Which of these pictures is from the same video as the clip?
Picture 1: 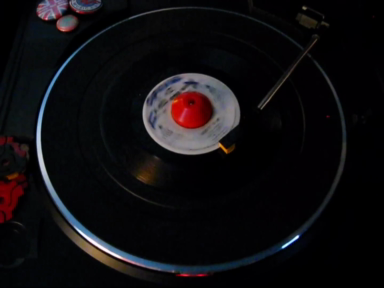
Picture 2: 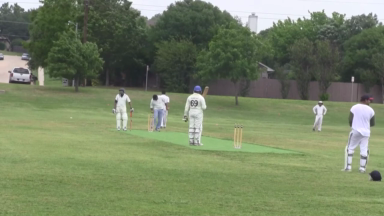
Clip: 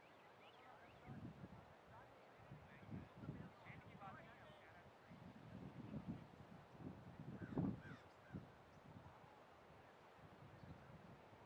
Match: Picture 2